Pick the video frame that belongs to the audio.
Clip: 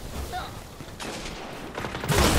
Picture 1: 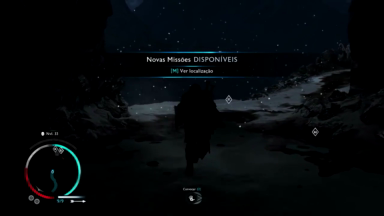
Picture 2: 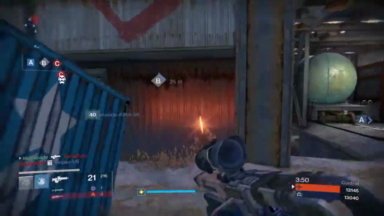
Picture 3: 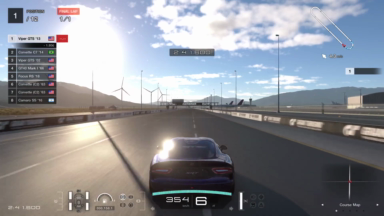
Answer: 2